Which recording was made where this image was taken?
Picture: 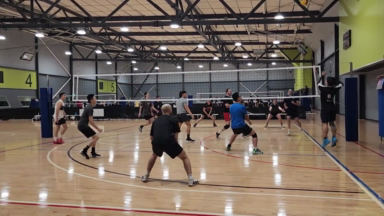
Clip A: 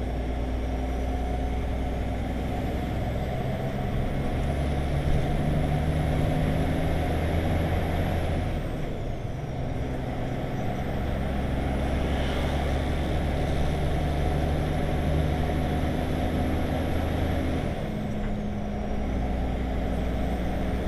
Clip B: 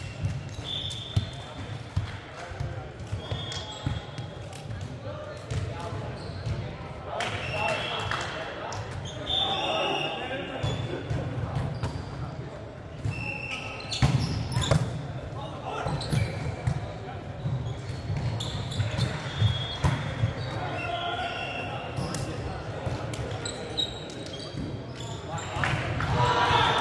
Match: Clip B